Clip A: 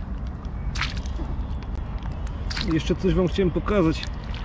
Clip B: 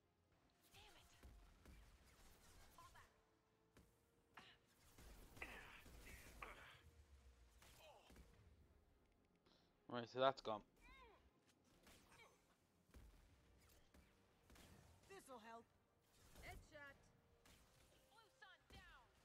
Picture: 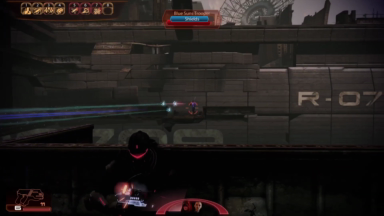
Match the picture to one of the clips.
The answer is B